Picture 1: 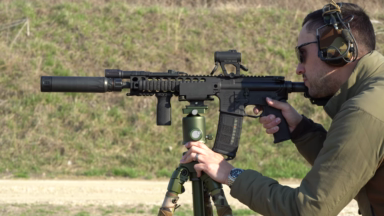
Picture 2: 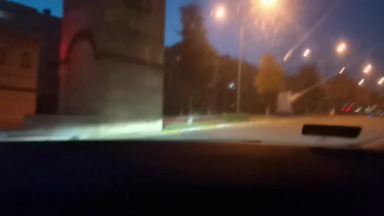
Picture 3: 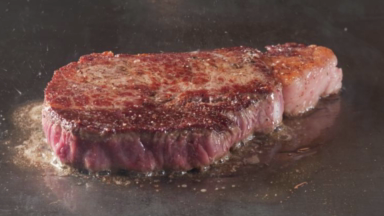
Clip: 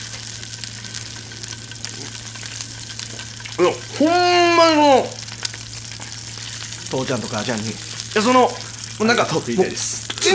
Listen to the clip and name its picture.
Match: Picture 3